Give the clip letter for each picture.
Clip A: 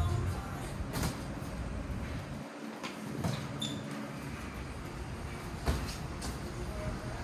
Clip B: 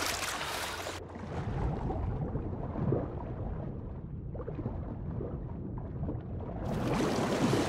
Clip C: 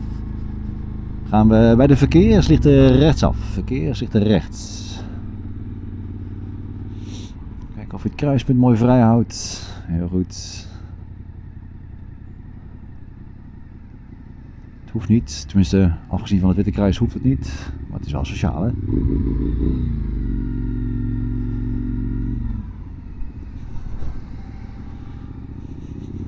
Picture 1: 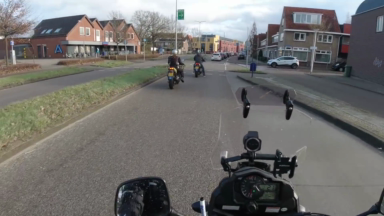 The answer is C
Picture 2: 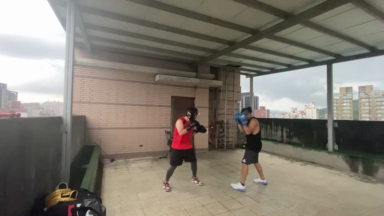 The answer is A